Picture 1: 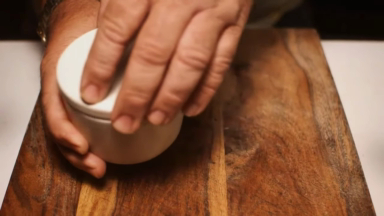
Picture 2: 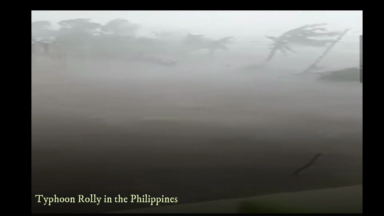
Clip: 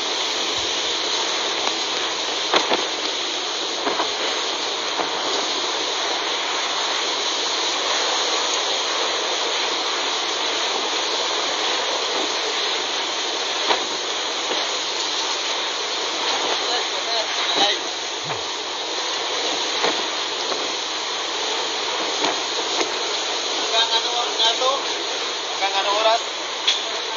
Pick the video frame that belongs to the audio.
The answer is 2